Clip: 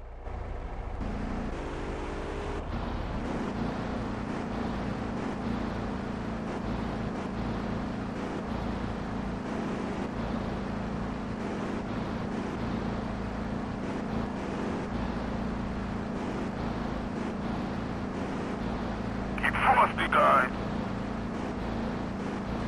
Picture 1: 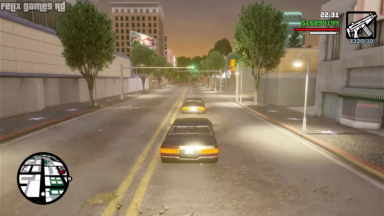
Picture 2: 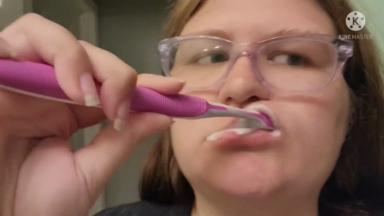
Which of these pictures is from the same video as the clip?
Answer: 1